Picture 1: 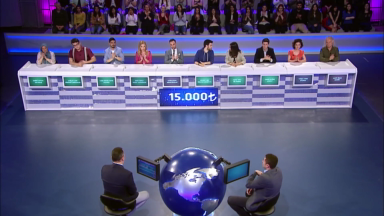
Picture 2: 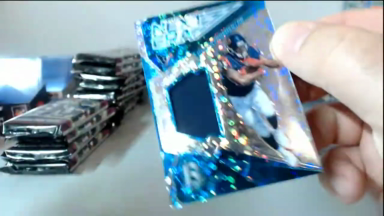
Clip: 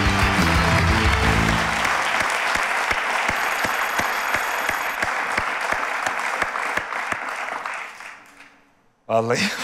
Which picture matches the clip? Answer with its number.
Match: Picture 1